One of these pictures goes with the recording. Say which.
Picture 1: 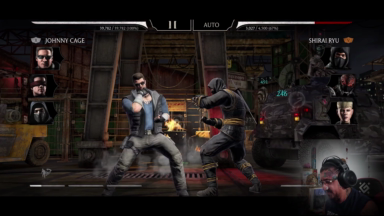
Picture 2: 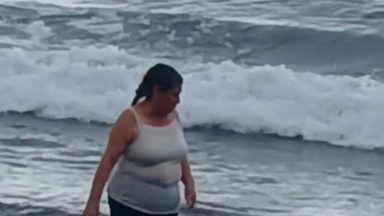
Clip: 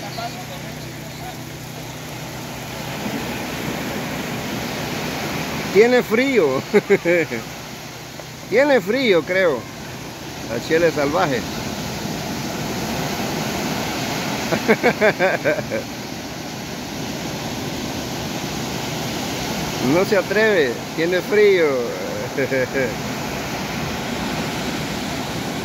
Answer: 2